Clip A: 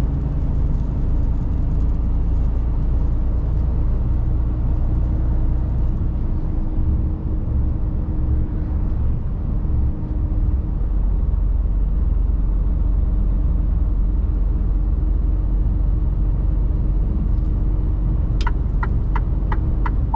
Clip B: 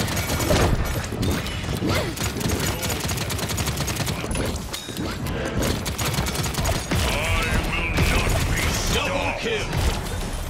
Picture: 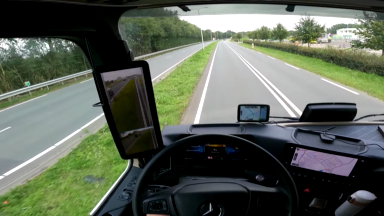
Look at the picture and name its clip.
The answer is A